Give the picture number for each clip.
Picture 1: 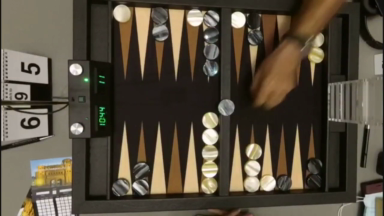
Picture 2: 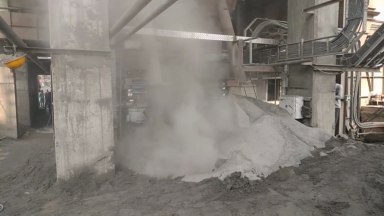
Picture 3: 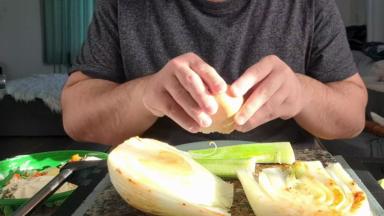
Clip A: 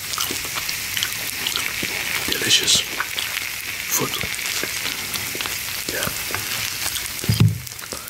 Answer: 3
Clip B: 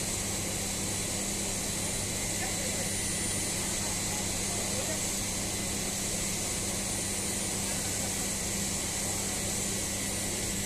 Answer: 2